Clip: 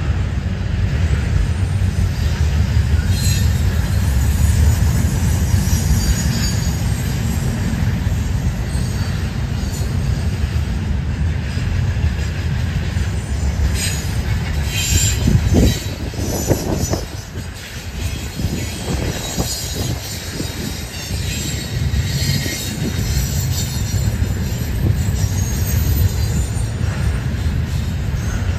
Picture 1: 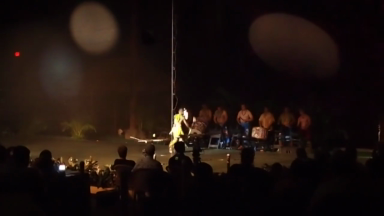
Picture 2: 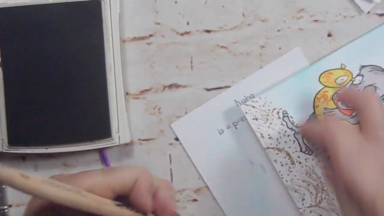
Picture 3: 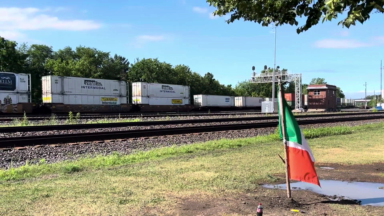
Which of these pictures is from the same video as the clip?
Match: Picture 3